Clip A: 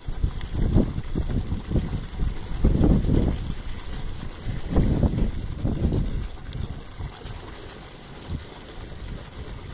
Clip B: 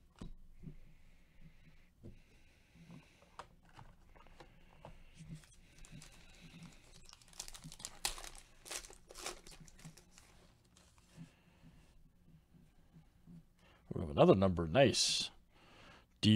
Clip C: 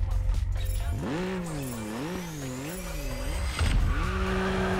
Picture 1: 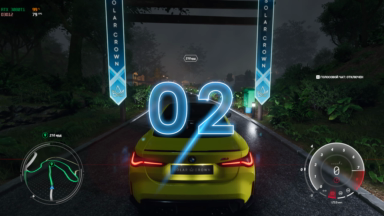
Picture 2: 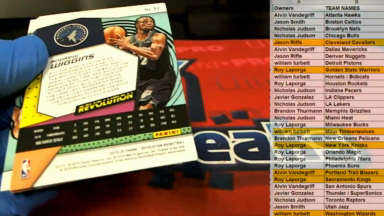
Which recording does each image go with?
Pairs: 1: C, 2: B